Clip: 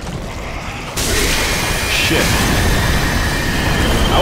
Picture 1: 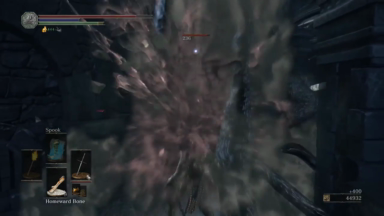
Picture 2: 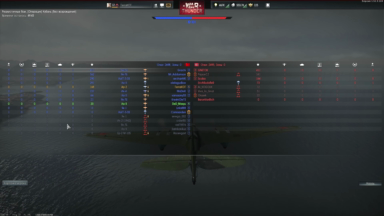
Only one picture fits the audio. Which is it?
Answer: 1